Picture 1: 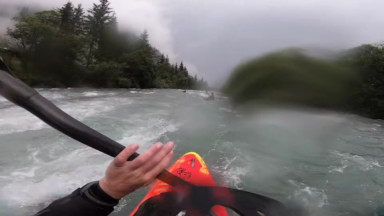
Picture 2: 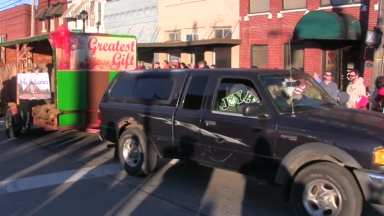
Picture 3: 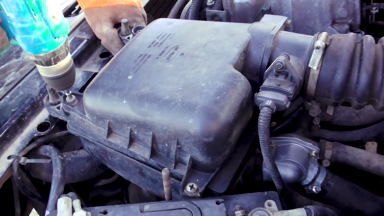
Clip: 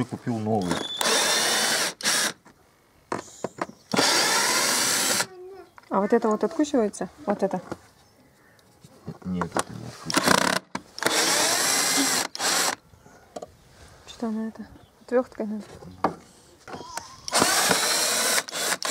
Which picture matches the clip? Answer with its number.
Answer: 3